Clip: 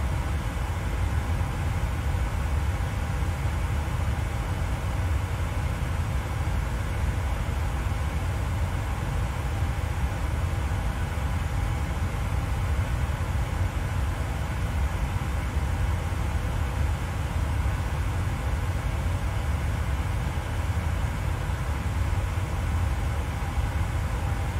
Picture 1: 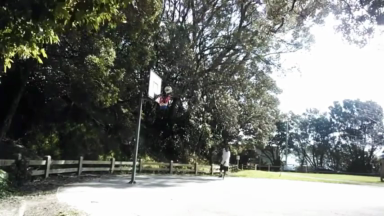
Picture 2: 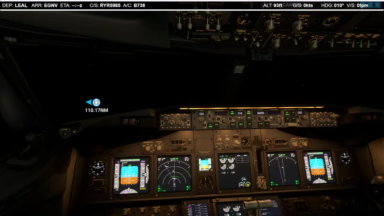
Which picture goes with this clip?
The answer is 2